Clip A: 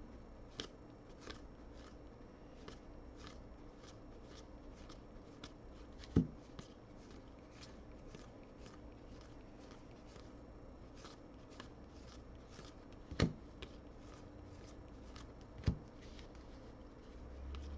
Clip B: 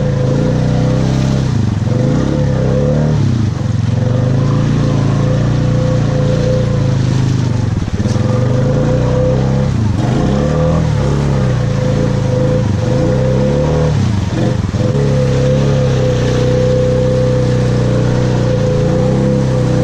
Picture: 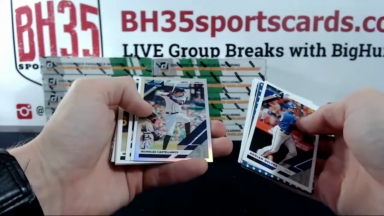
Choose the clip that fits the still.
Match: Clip A